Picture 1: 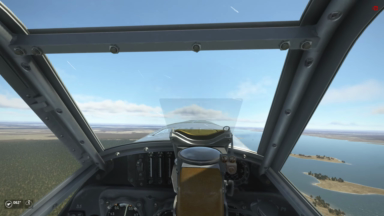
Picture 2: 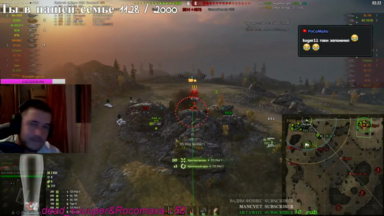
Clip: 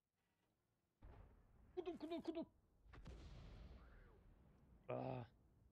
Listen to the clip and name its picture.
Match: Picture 2